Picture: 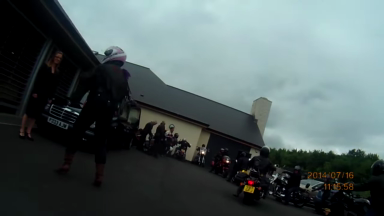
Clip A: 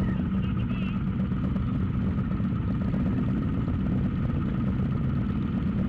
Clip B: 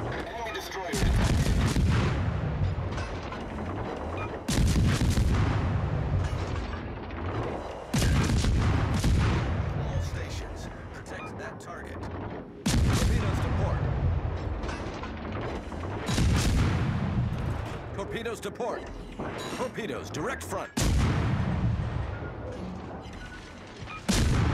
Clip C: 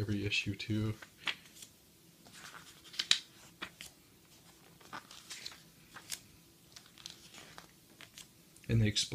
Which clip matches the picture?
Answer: A